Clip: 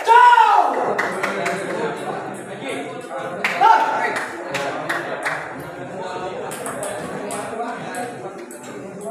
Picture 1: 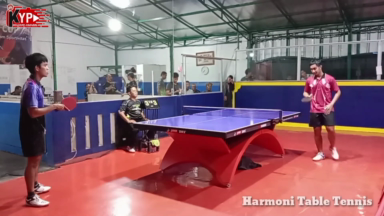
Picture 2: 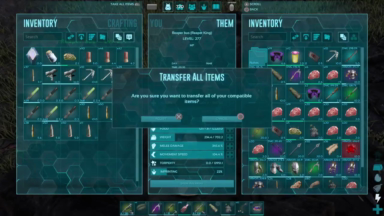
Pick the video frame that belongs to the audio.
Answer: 1